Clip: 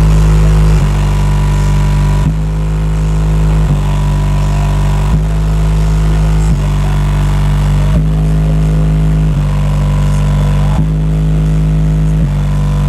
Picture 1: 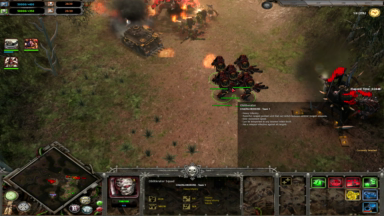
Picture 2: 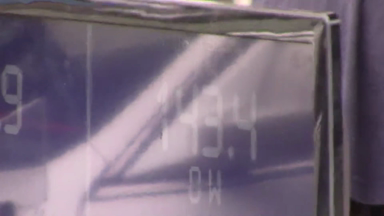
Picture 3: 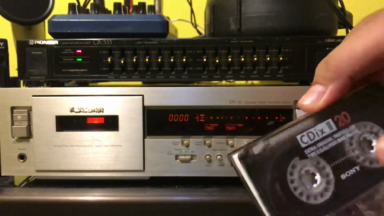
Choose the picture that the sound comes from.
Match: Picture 2